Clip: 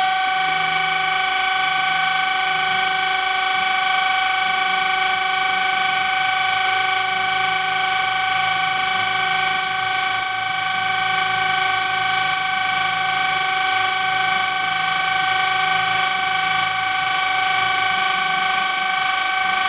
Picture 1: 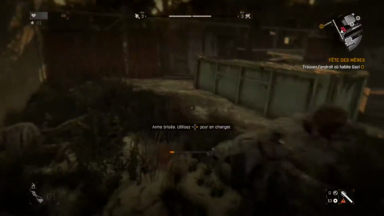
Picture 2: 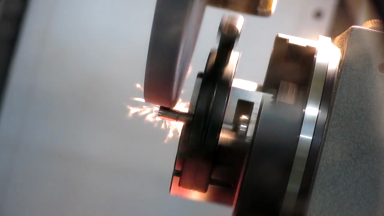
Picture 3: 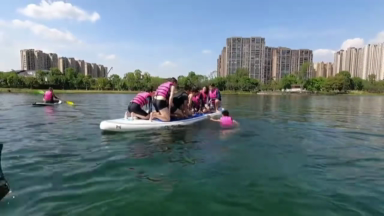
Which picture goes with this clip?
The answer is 2